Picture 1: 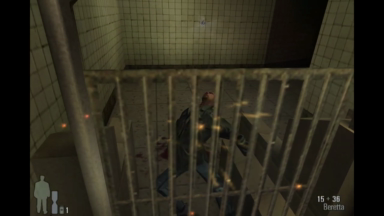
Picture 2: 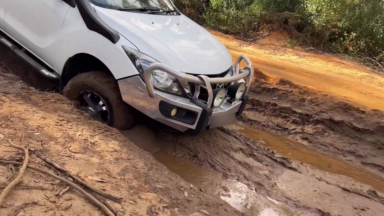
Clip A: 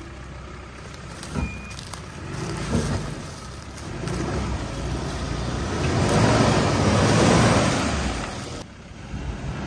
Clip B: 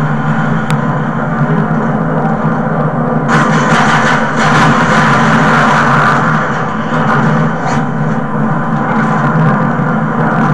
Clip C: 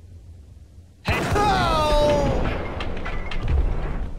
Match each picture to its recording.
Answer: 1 C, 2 A